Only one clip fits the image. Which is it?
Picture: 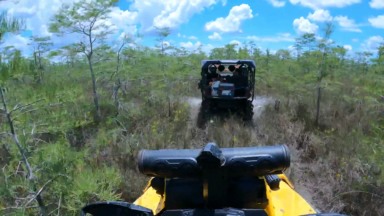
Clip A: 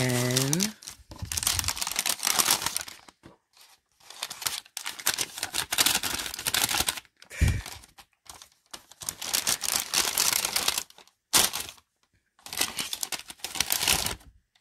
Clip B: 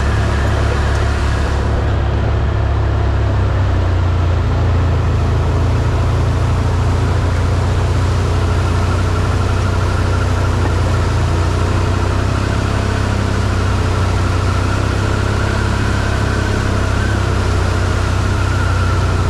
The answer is B